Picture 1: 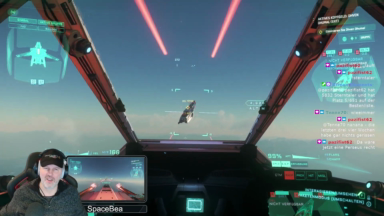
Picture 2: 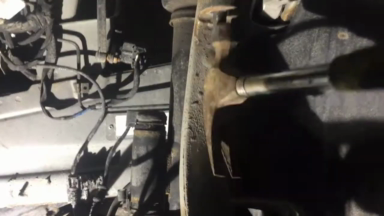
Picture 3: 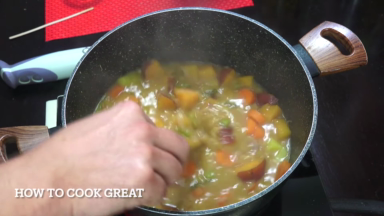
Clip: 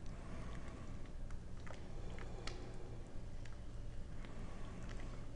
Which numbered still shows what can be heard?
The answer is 3